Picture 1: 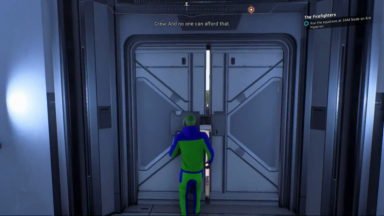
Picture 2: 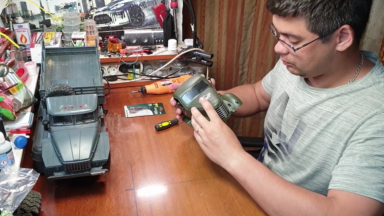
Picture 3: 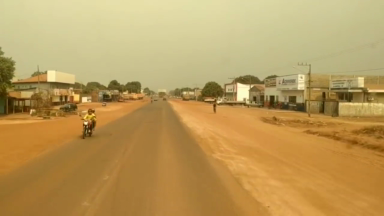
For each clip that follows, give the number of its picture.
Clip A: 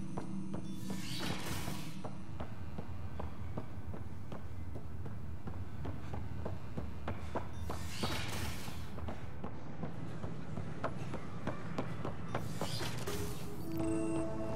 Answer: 1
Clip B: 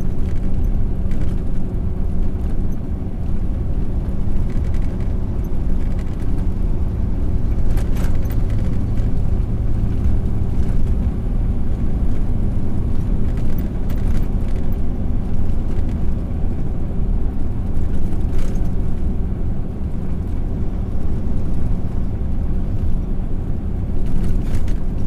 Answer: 3